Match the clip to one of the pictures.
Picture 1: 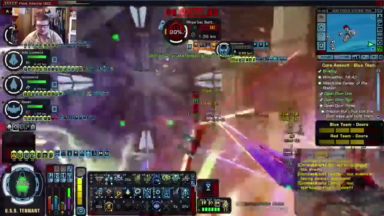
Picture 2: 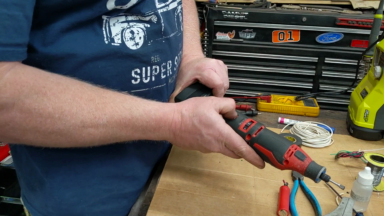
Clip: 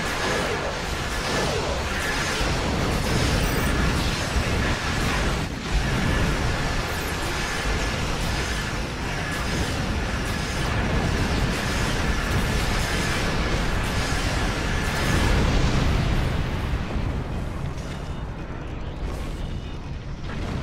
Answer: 1